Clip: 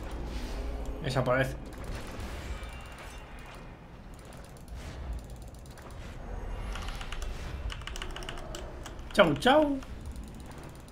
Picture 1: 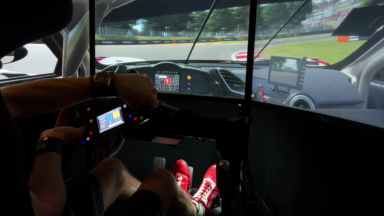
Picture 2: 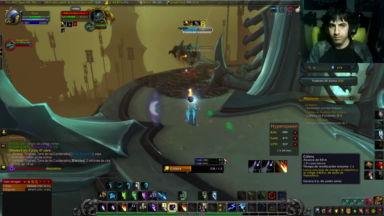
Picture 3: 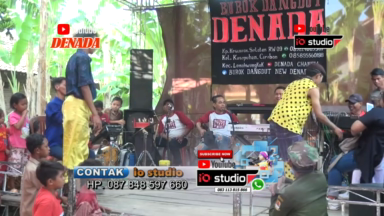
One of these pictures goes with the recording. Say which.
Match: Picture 2